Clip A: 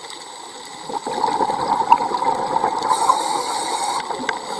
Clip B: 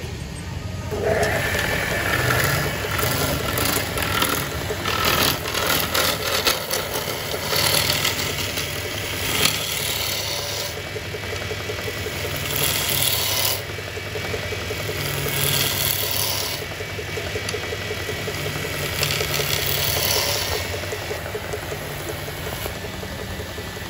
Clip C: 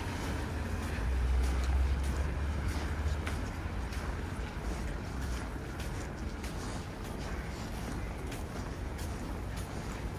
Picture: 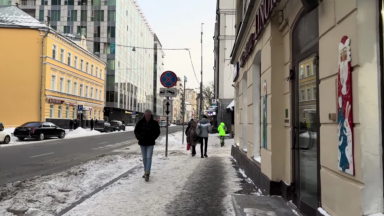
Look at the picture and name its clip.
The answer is C